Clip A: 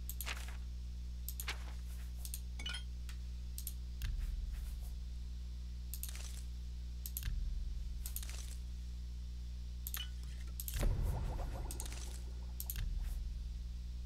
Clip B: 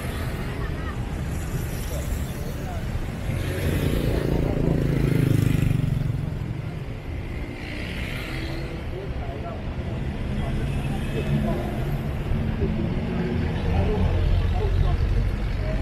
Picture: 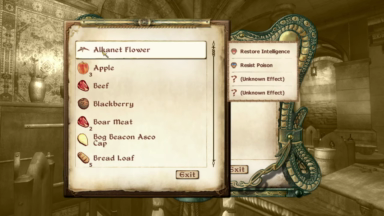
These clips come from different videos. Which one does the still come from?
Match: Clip A